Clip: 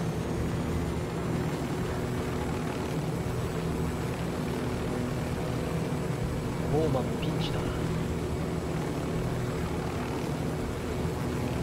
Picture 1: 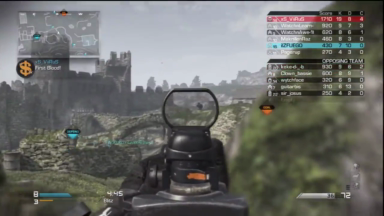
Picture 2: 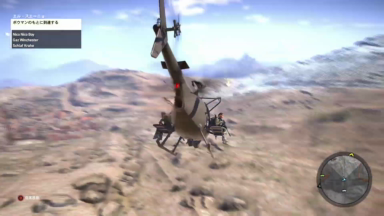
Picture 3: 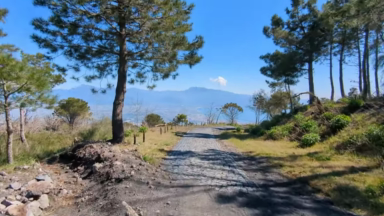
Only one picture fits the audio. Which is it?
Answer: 2